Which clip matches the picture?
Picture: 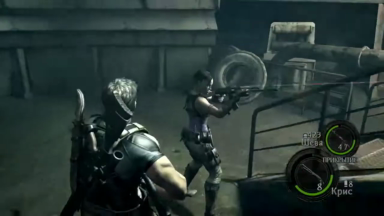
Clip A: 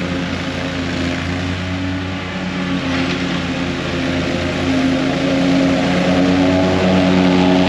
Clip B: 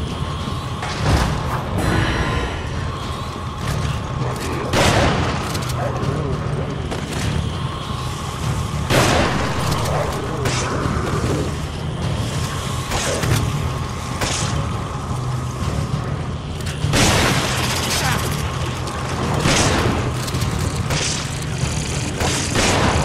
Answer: B